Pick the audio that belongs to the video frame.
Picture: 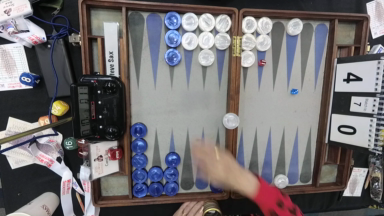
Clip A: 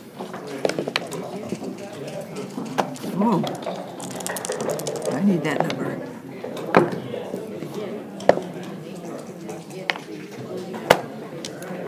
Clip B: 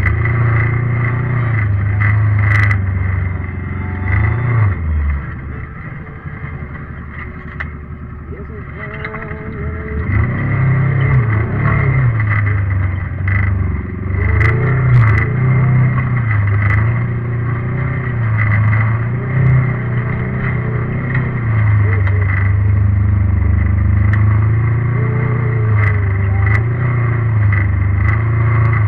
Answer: A